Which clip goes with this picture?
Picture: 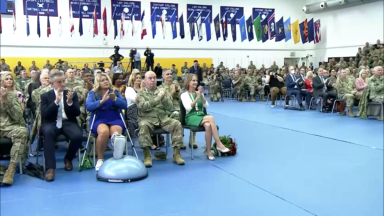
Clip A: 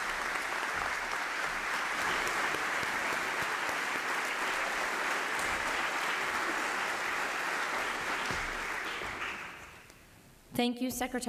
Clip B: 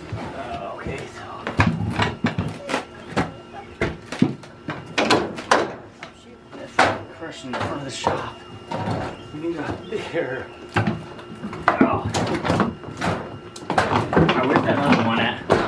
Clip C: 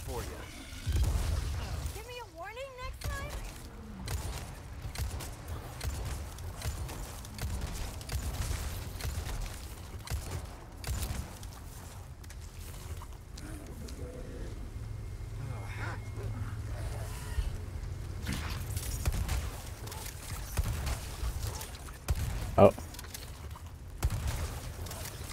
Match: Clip A